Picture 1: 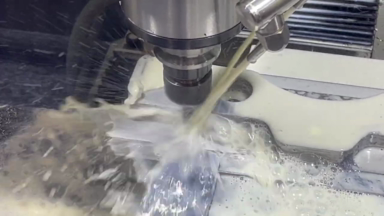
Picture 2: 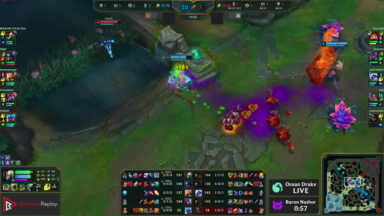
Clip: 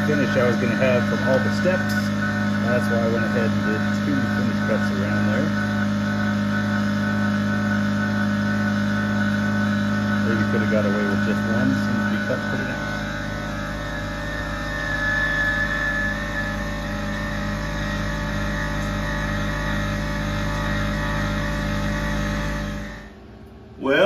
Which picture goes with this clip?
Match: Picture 1